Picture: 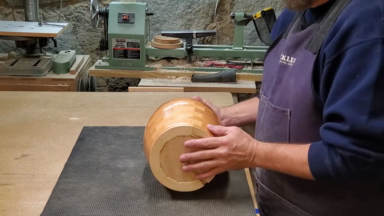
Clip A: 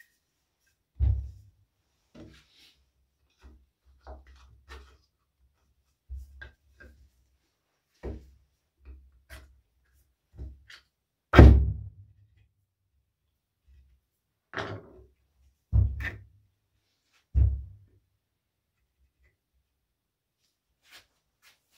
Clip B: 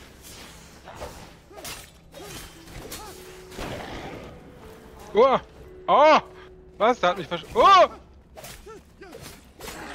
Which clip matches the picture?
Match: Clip A